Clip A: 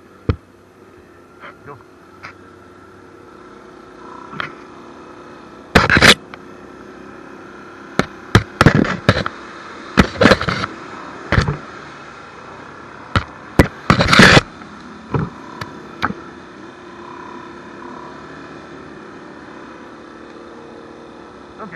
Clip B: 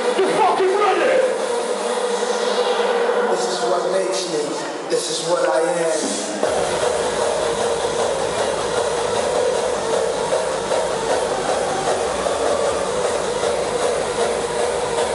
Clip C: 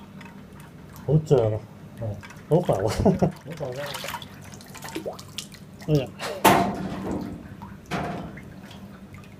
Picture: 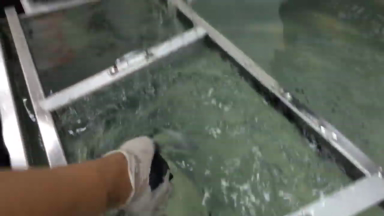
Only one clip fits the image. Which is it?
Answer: C